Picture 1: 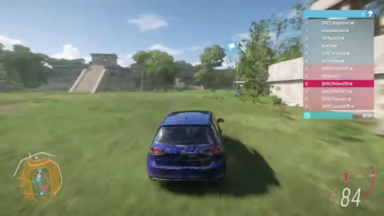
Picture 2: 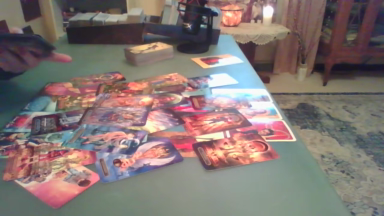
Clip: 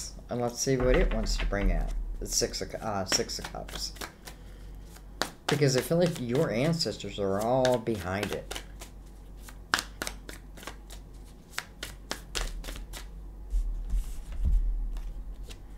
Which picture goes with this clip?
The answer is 2